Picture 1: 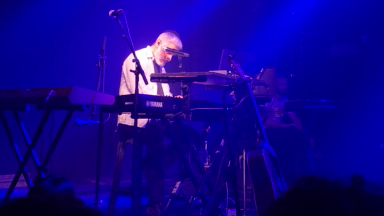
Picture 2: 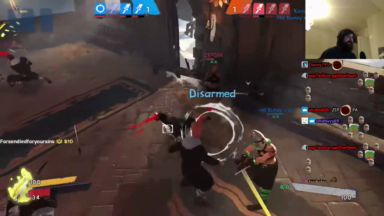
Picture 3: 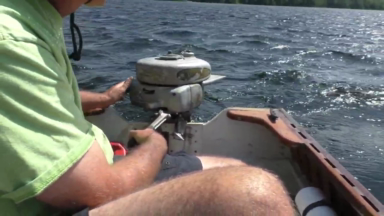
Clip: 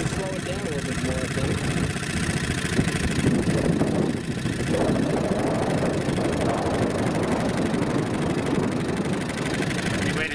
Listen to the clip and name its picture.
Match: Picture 3